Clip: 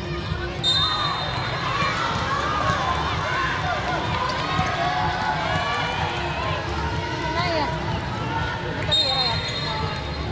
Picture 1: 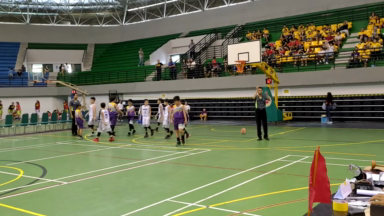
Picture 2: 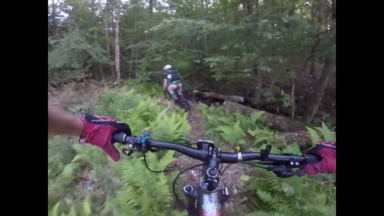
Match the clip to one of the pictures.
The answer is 1